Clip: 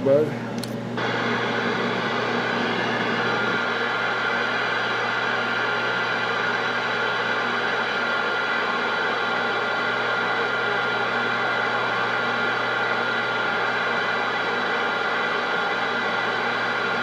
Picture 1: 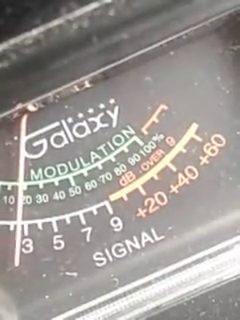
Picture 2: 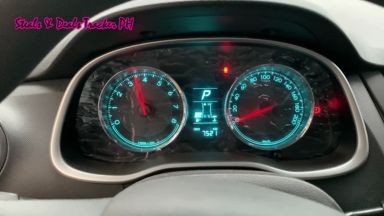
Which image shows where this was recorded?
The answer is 1